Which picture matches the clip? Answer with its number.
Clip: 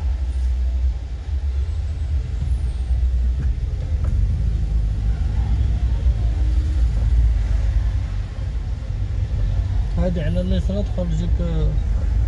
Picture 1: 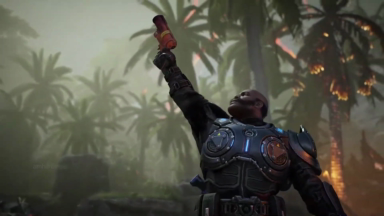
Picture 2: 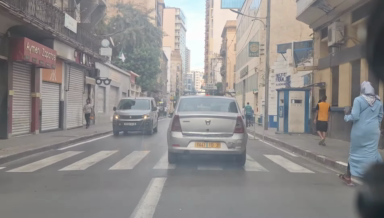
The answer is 2